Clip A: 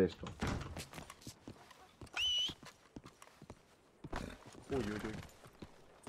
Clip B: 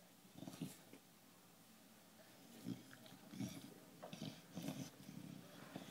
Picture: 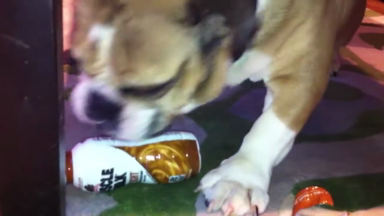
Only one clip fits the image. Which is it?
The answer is B